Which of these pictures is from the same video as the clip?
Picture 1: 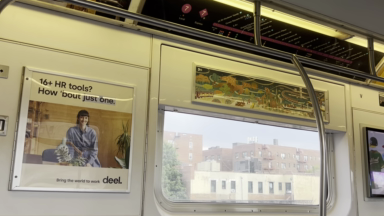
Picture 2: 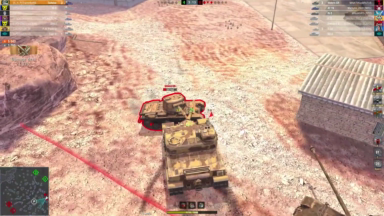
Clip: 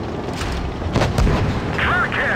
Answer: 2